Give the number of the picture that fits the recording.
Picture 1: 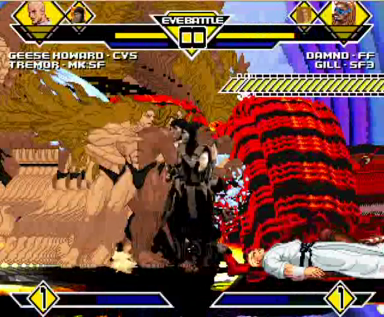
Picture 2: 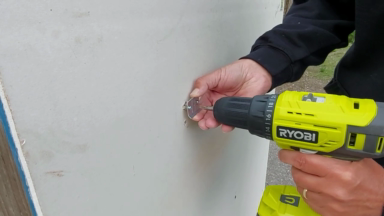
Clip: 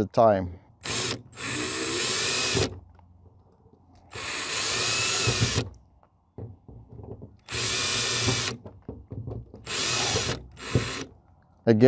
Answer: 2